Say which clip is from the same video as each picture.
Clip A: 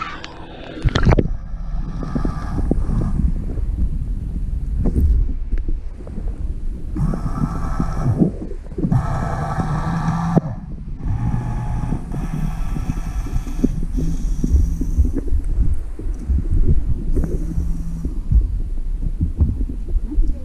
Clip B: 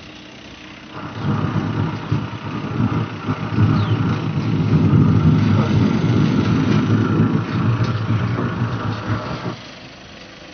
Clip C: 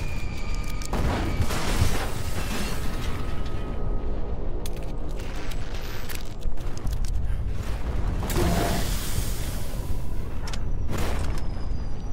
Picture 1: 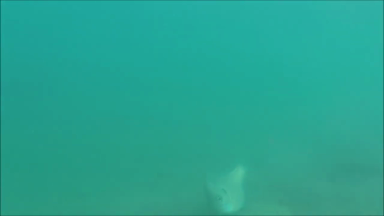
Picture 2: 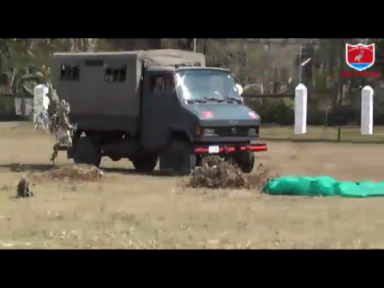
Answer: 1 A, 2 B